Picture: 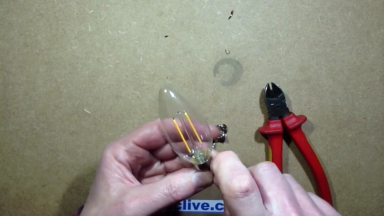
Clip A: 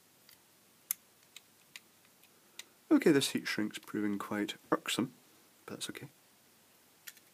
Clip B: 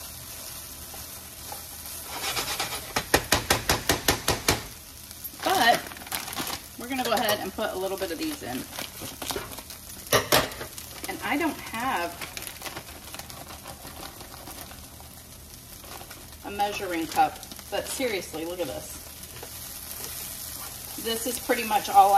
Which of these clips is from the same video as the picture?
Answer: A